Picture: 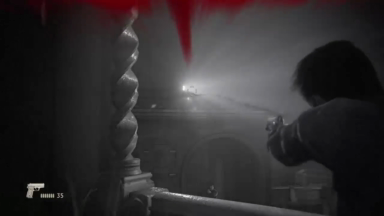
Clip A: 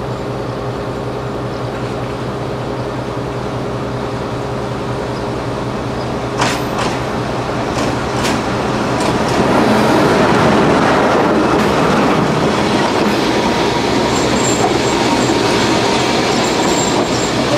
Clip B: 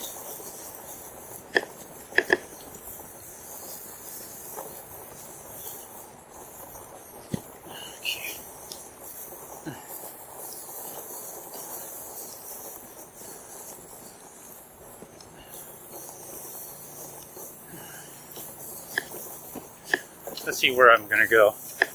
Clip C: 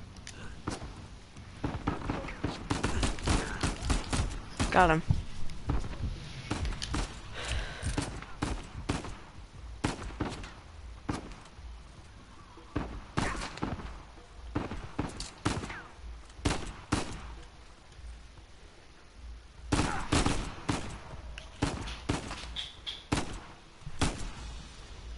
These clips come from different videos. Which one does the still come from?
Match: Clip C